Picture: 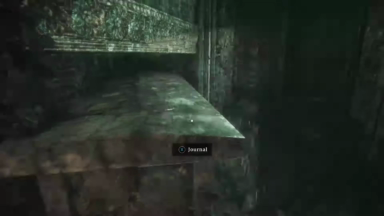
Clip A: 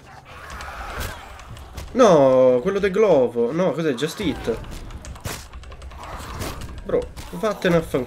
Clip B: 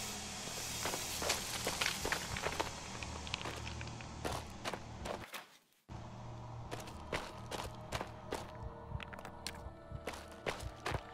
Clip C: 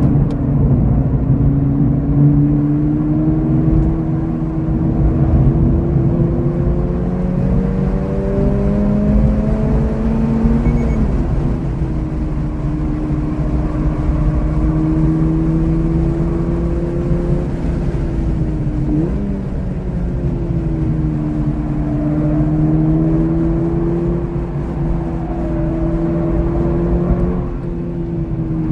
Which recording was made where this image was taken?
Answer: B